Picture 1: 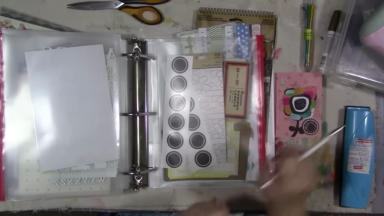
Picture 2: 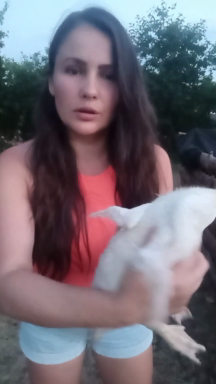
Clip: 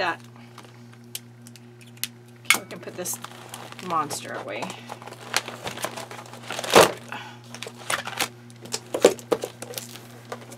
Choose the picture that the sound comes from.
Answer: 1